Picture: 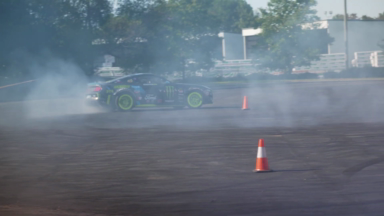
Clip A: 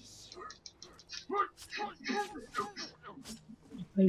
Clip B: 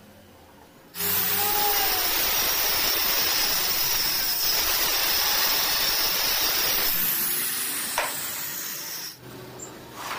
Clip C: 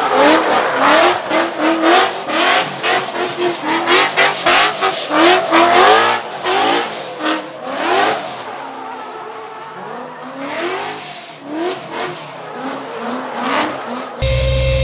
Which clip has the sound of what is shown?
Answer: C